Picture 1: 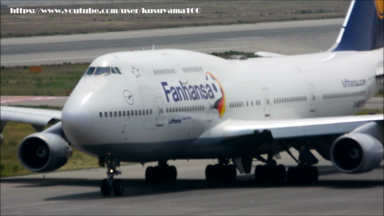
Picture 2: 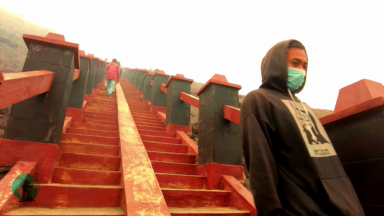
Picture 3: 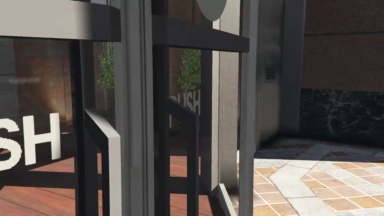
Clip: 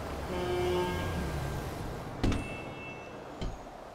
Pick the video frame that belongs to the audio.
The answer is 3